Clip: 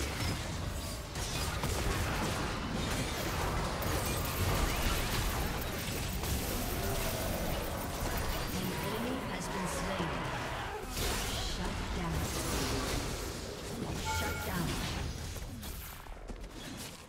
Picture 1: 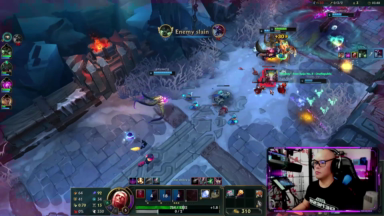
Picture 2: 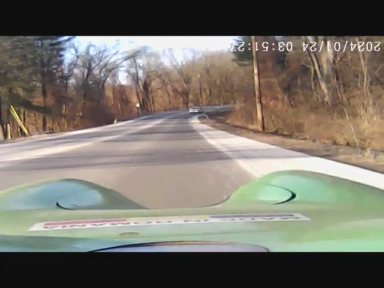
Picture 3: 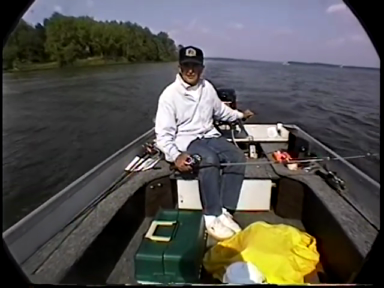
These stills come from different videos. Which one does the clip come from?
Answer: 1